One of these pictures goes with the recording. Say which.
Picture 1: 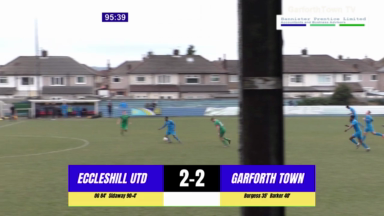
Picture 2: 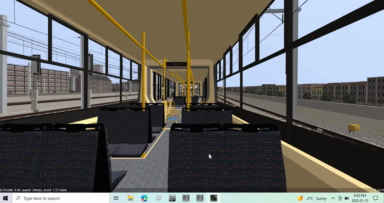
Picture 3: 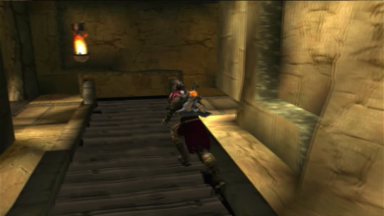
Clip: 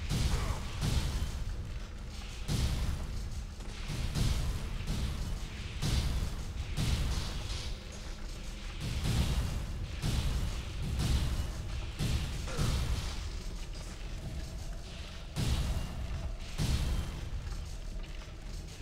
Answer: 3